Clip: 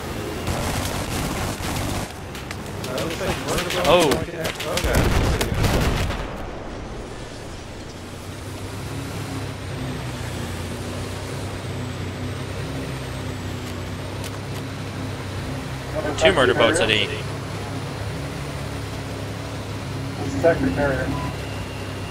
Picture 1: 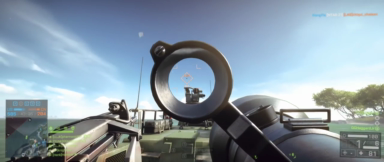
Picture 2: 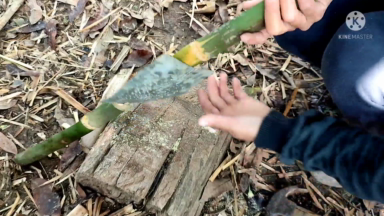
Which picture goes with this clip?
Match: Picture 1